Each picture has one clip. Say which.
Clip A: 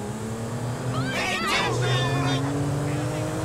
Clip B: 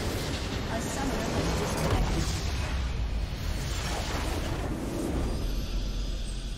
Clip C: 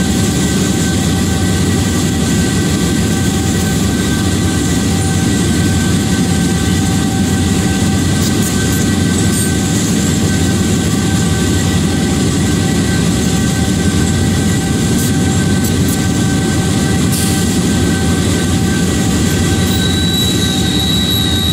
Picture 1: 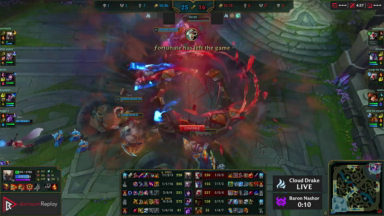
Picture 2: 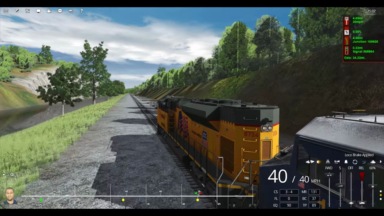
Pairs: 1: B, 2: C